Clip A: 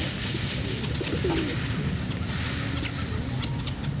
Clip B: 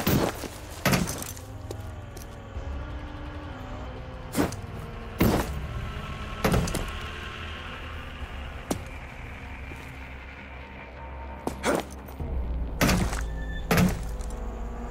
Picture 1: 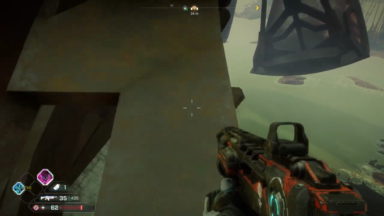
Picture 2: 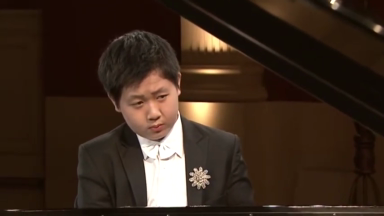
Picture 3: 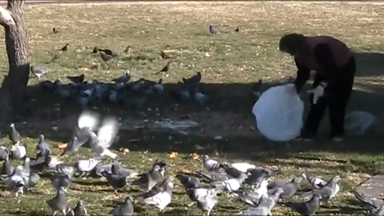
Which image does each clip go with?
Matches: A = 3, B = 1